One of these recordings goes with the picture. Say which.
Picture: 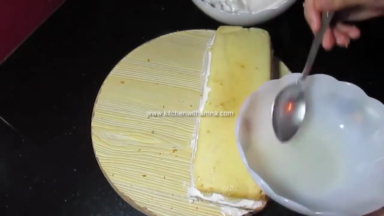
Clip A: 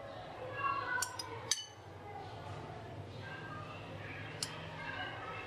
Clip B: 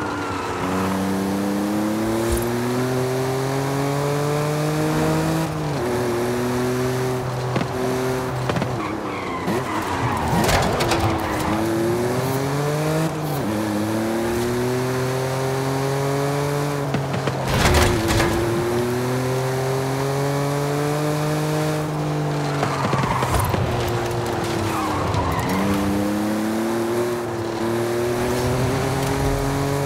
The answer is A